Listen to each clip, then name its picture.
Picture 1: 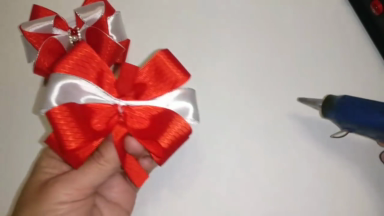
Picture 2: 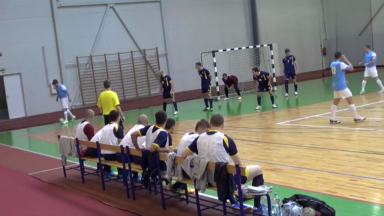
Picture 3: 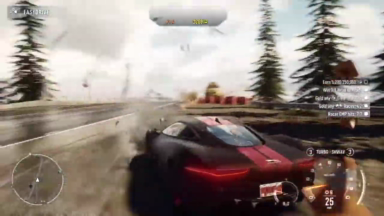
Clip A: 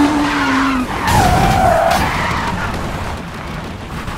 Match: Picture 3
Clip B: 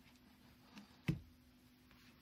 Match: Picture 1